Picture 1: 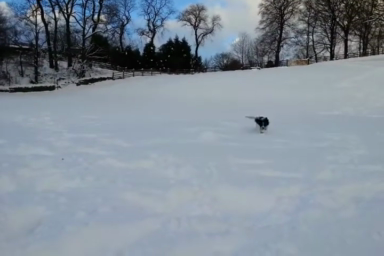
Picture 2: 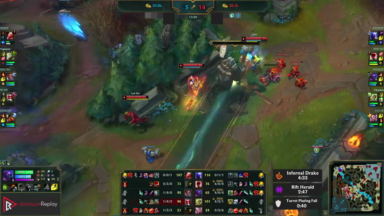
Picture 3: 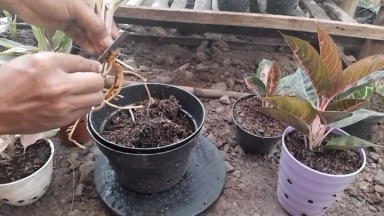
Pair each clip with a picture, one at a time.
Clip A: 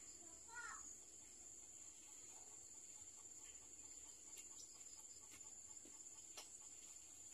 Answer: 3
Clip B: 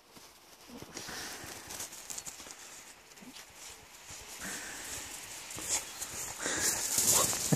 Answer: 1